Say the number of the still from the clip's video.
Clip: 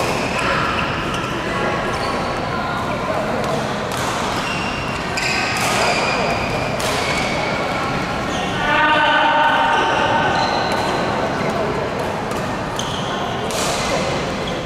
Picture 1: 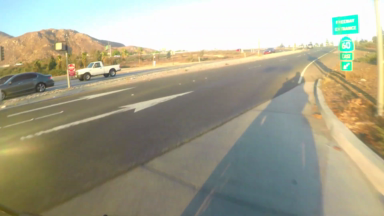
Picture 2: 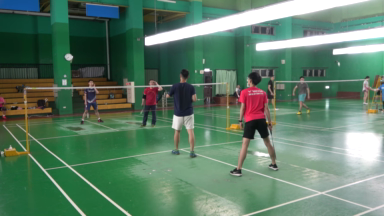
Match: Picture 2